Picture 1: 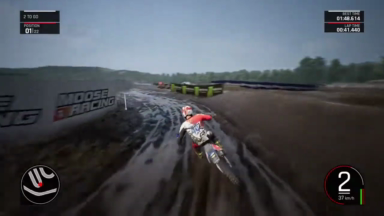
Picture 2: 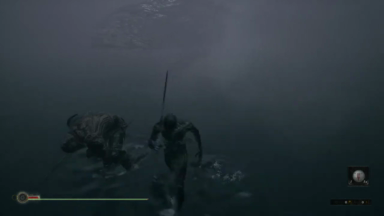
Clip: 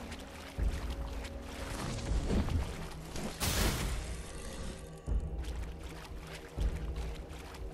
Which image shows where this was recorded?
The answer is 2